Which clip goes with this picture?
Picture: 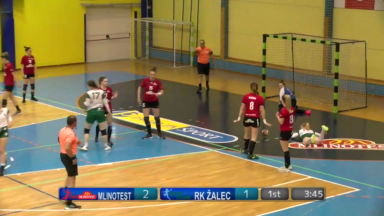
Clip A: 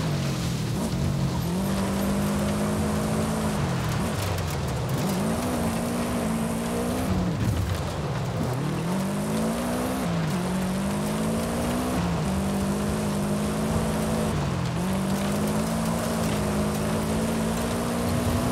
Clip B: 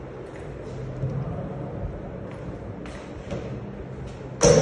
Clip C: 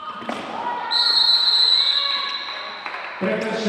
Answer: C